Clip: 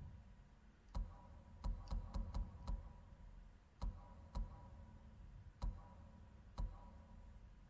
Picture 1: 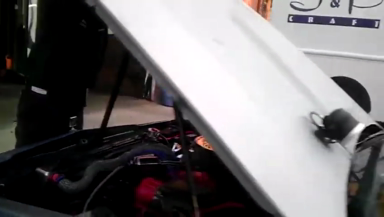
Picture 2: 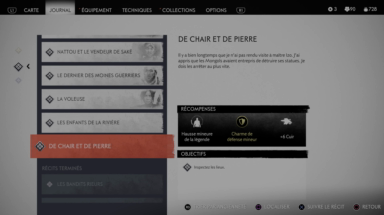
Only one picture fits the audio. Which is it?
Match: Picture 2